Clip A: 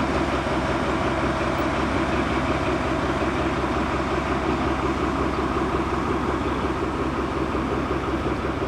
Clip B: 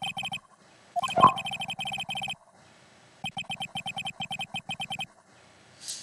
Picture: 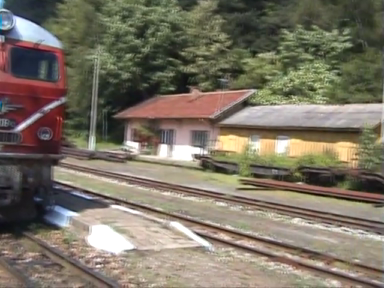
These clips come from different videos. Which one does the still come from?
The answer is A